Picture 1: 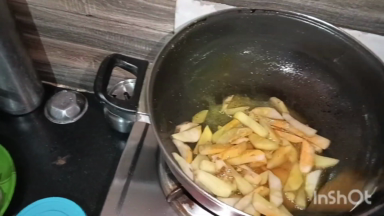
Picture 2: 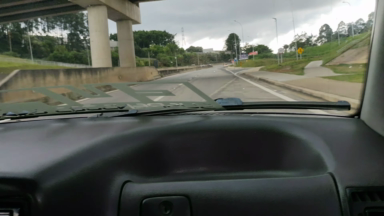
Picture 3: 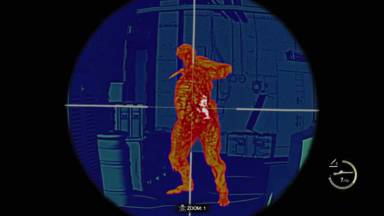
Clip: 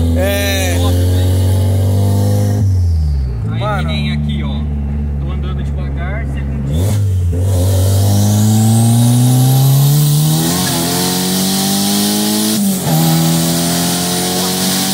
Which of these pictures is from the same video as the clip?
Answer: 2